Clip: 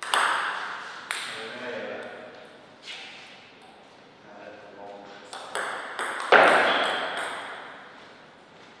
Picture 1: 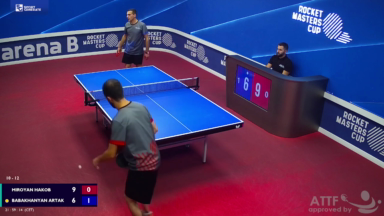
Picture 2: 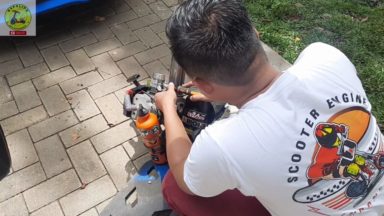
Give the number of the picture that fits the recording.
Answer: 1